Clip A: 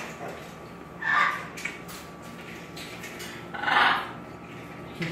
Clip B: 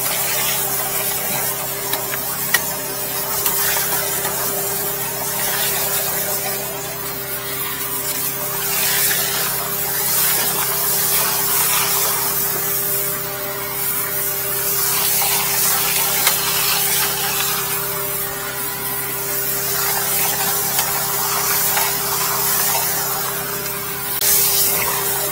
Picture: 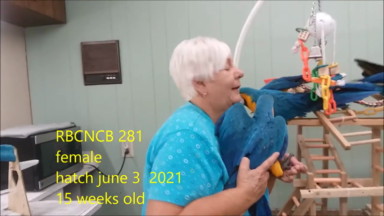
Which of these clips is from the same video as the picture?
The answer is A